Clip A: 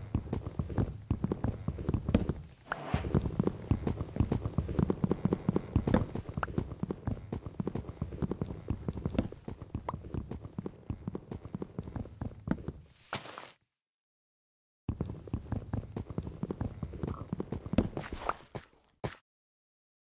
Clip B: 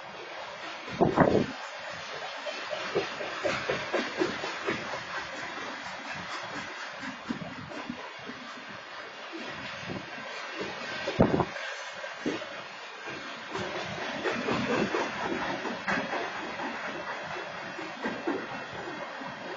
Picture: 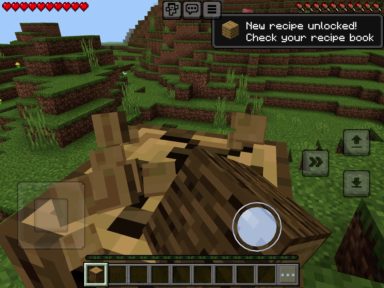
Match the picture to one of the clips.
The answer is A